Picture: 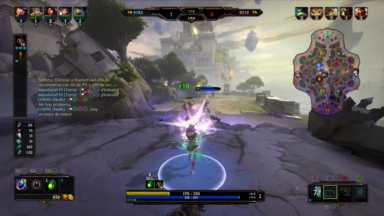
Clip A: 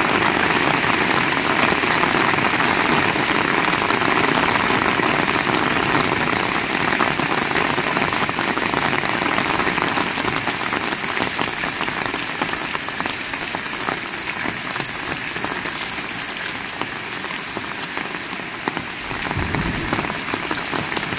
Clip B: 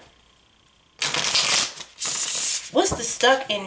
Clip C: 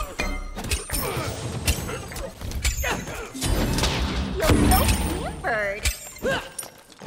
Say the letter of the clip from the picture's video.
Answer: C